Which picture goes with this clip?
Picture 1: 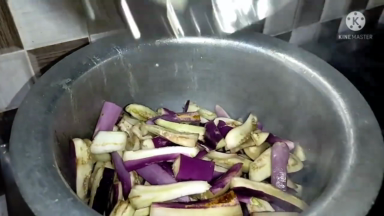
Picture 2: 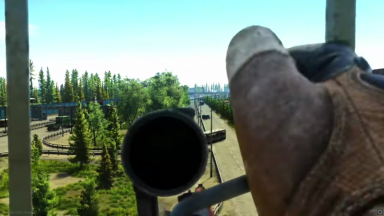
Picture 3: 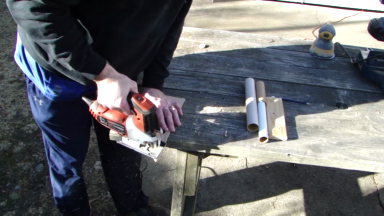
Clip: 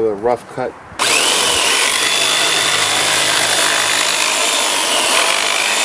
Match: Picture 3